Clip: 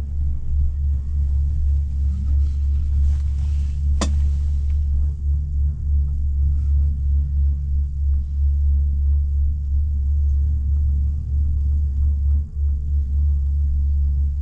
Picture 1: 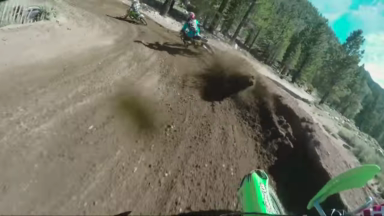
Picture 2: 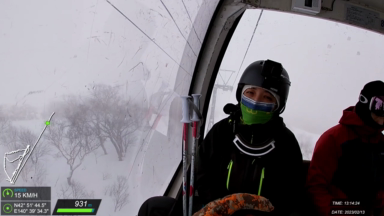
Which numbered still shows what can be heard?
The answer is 2